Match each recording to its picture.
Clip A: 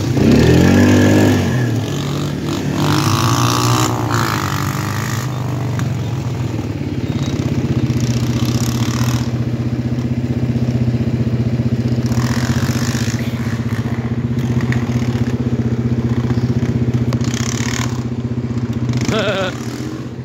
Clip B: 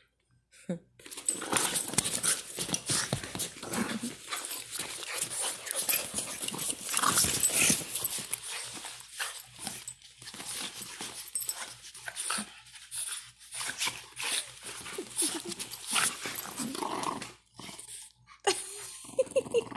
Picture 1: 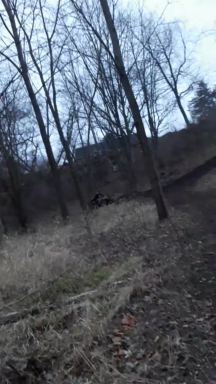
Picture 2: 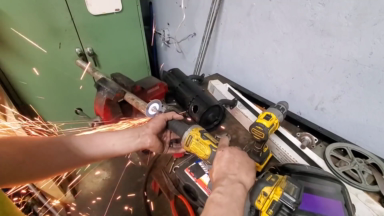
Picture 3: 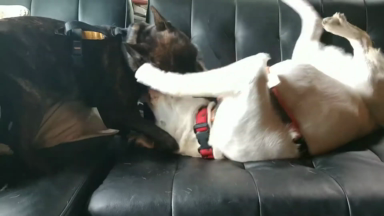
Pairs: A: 1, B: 3